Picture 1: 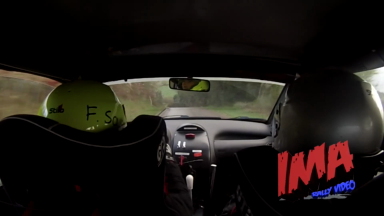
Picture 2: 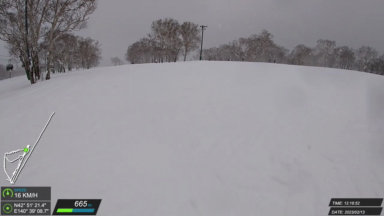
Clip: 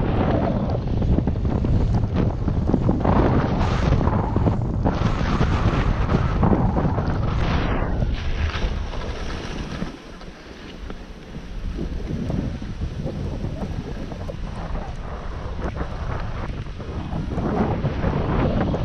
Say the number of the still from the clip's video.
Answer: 2